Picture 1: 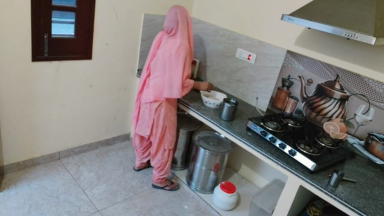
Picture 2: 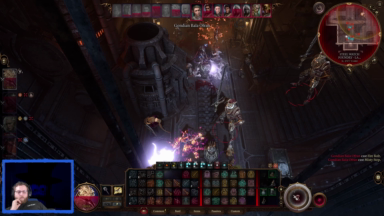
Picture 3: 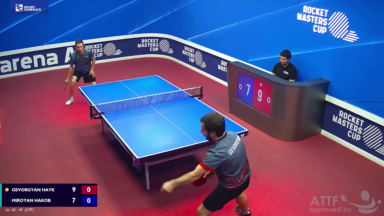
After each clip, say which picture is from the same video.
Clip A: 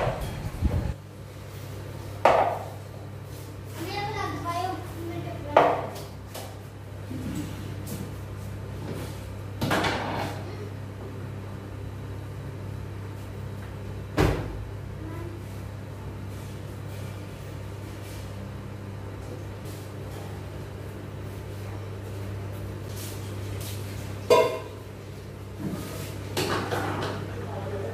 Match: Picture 1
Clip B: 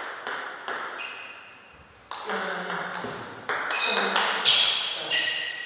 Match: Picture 3